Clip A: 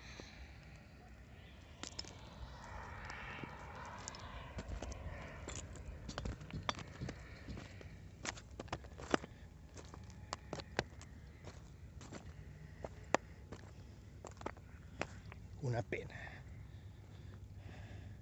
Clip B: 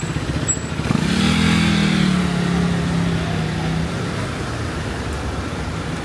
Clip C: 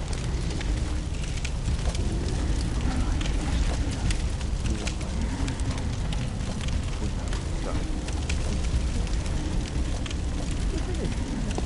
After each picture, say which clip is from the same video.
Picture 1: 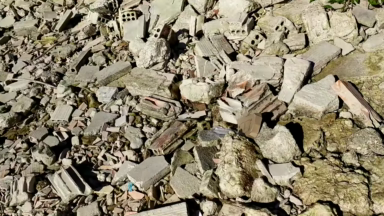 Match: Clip A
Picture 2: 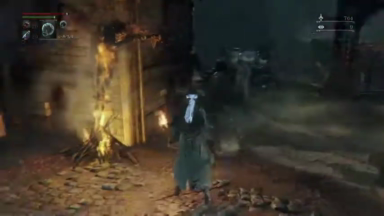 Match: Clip C